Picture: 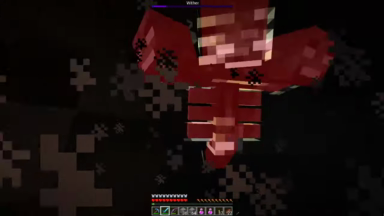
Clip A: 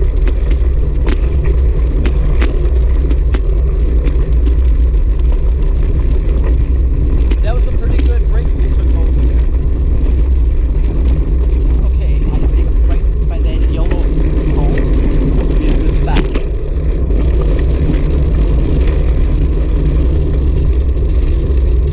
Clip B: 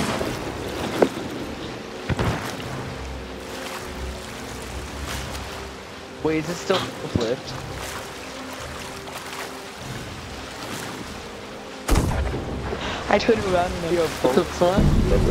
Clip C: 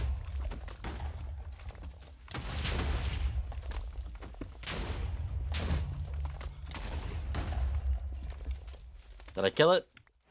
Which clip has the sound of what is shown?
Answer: C